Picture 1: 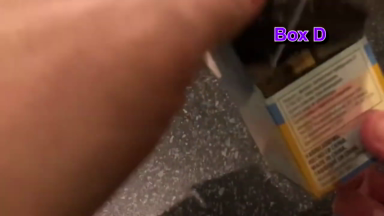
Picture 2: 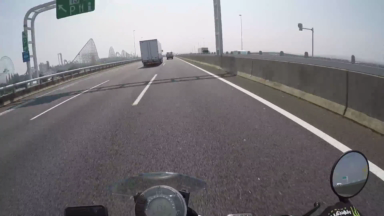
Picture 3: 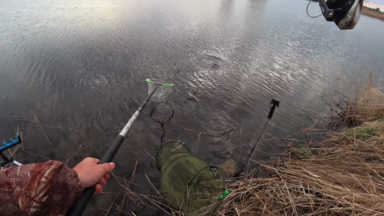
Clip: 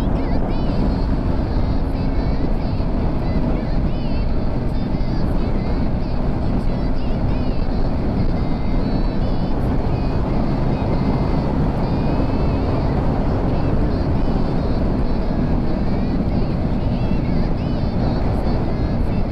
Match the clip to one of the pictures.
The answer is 2